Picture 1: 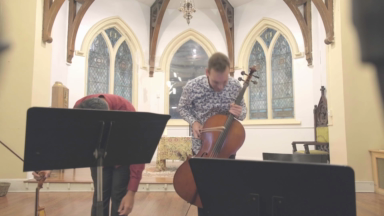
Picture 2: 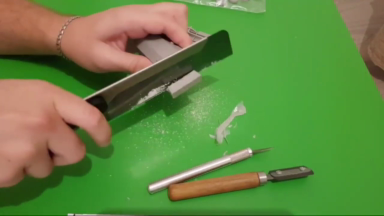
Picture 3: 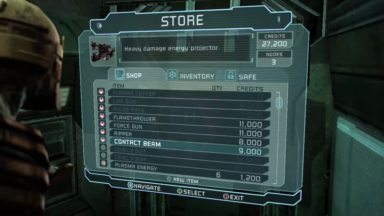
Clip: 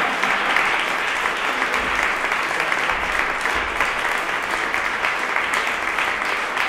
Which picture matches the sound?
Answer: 1